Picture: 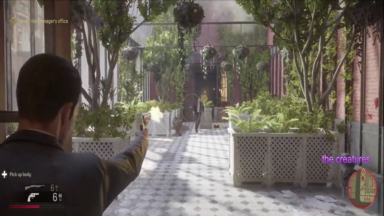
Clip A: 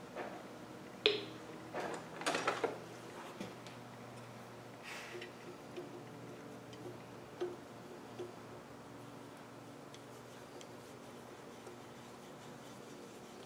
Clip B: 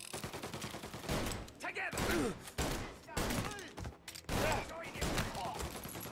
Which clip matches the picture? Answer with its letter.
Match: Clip B